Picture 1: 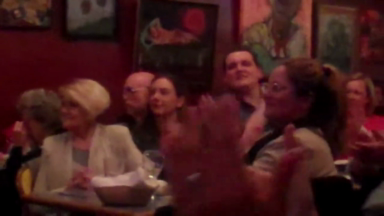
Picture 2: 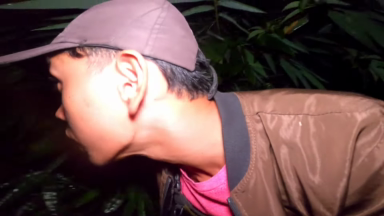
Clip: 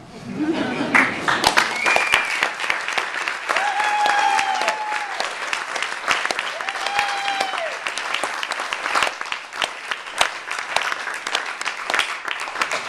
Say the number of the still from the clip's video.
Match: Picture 1